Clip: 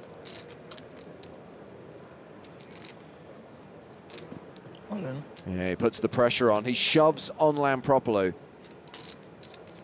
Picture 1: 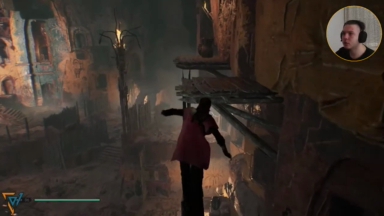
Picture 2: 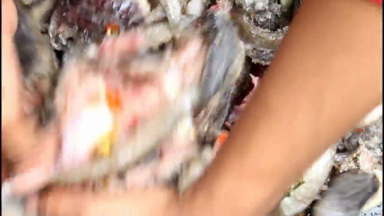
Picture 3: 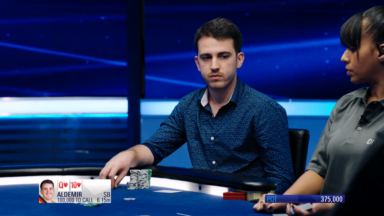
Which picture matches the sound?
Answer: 3